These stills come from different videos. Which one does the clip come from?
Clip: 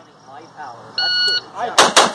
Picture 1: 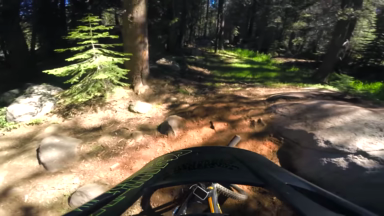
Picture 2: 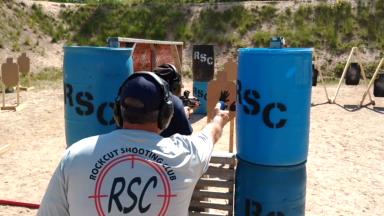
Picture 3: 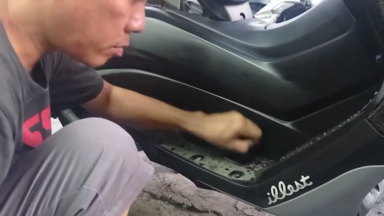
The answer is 2